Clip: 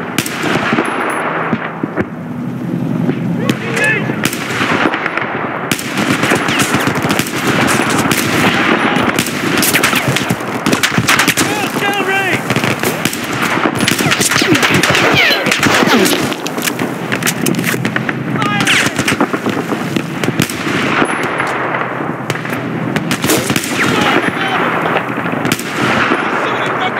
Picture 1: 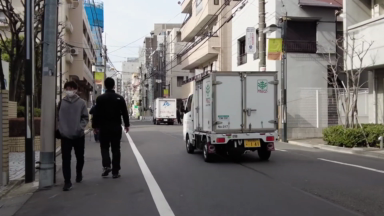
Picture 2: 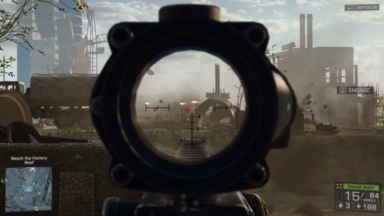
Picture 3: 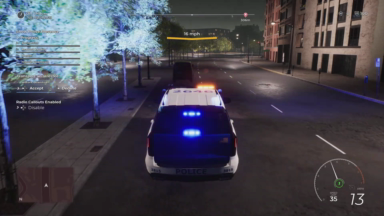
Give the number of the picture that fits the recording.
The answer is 2